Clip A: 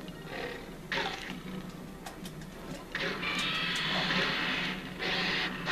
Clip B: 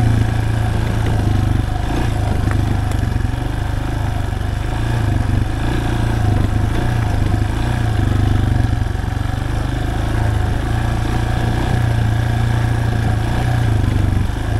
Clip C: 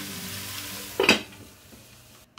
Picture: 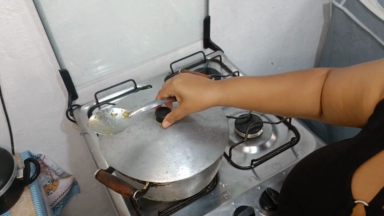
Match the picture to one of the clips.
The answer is C